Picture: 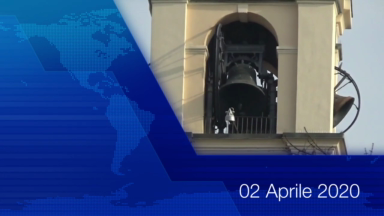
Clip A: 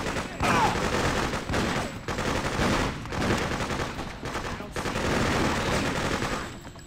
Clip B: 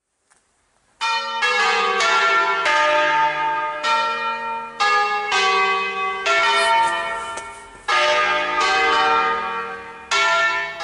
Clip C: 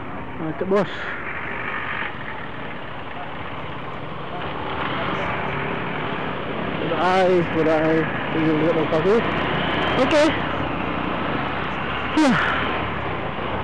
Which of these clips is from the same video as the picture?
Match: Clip B